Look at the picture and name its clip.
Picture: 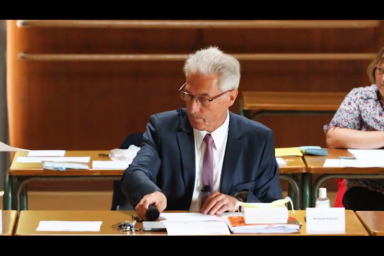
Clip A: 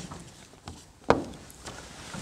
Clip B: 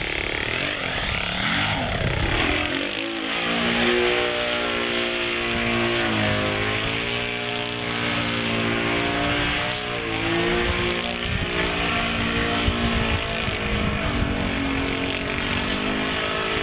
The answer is A